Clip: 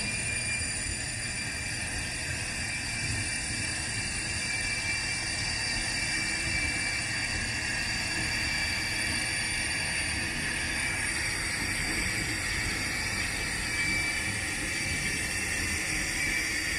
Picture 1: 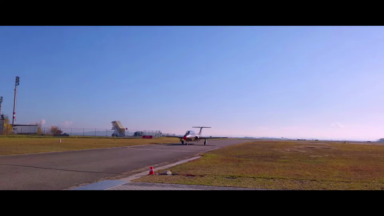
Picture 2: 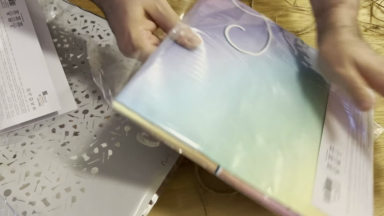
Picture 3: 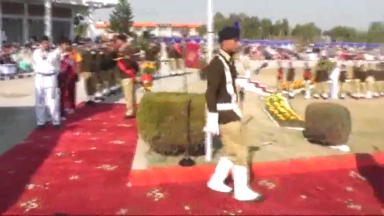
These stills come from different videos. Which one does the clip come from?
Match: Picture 1